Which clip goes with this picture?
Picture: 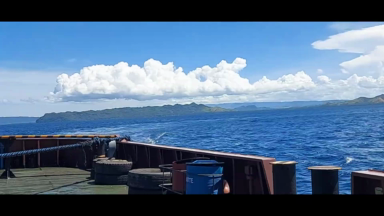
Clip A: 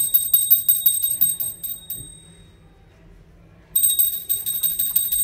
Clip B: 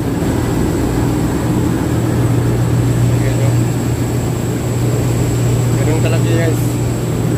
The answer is B